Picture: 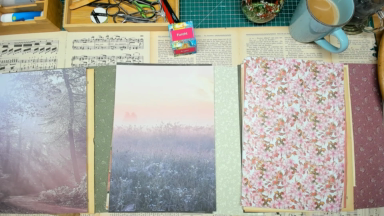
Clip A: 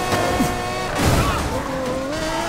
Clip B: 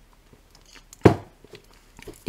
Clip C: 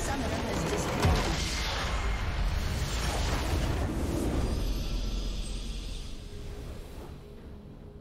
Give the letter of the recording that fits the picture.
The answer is B